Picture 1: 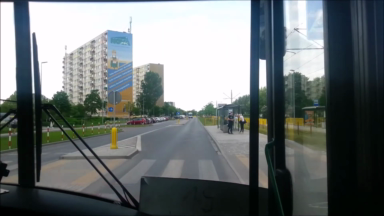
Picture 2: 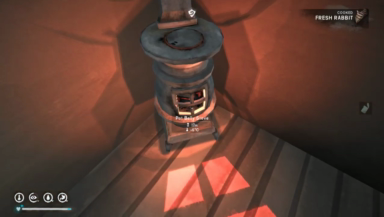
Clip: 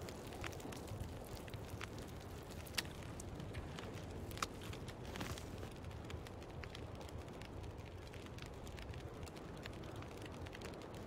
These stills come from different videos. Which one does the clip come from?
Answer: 2